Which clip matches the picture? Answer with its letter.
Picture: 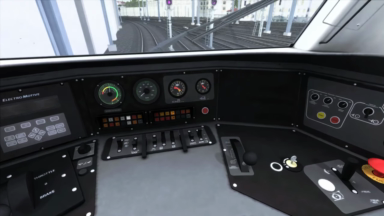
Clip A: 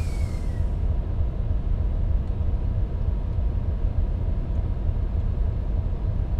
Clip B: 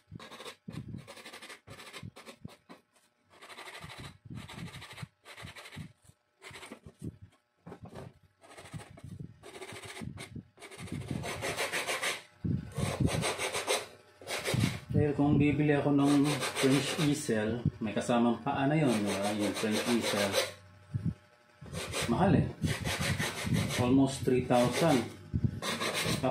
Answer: A